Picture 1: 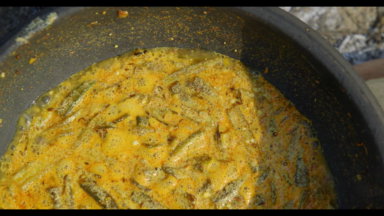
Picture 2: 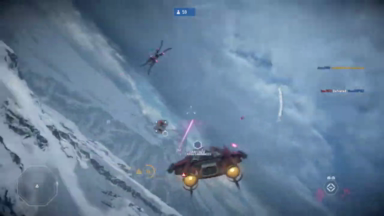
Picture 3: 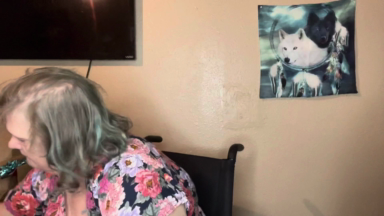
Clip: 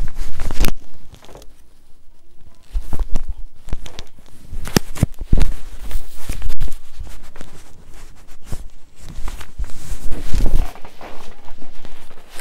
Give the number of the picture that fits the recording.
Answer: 3